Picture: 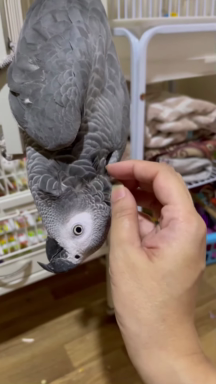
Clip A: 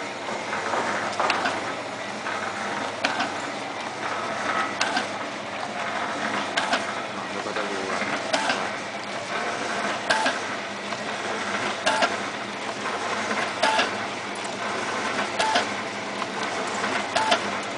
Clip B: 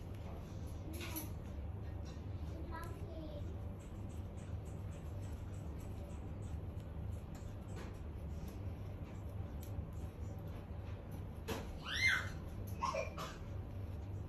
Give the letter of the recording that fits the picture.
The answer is B